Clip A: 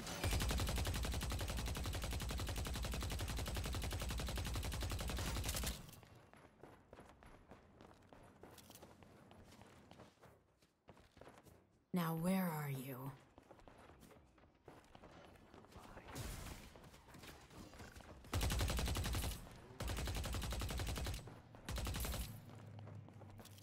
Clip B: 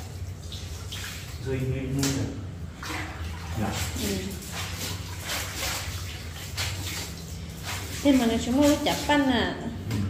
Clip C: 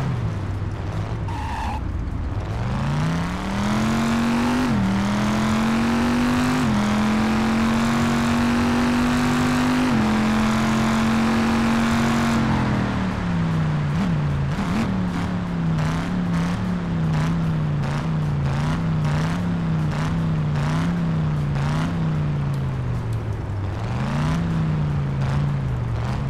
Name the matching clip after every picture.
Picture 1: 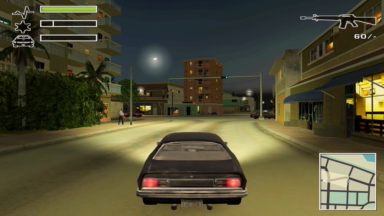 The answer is C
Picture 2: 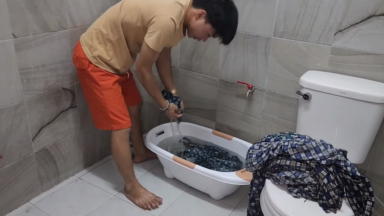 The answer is B